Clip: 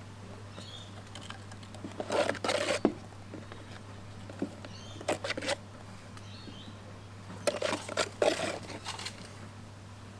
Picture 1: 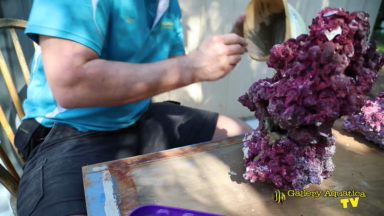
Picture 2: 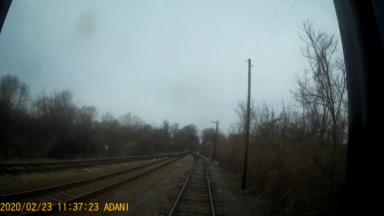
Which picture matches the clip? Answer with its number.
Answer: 1